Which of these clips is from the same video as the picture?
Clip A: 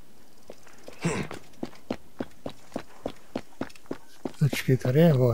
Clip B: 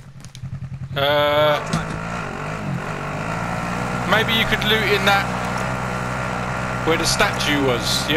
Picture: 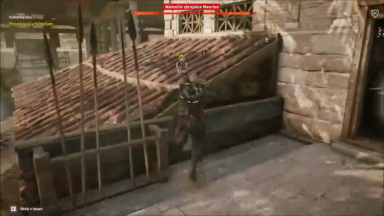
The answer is A